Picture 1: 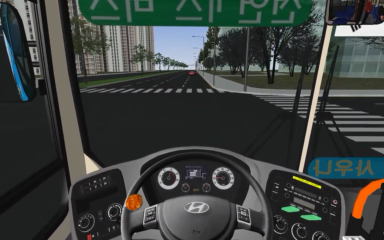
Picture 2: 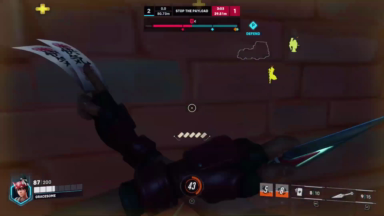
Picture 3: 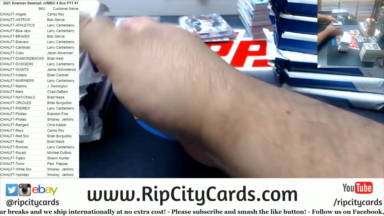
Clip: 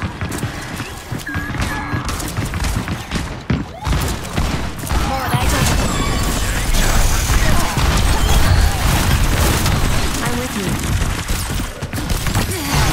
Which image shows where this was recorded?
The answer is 2